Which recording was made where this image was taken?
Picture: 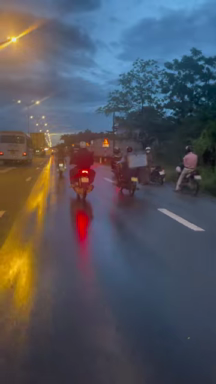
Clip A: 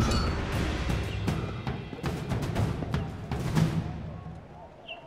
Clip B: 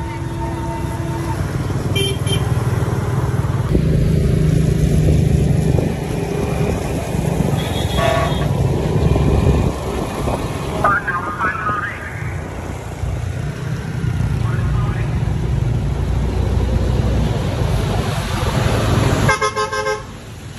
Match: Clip B